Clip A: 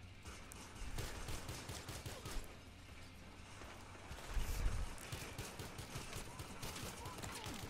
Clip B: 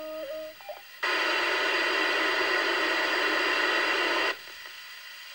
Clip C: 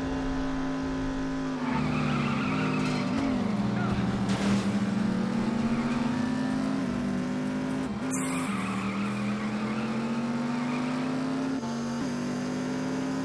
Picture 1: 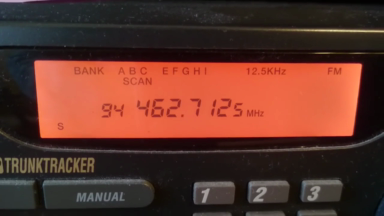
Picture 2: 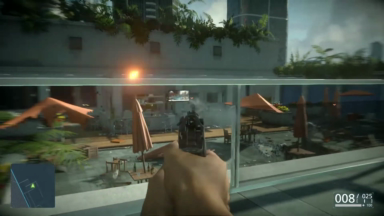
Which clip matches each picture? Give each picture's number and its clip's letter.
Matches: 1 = B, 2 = A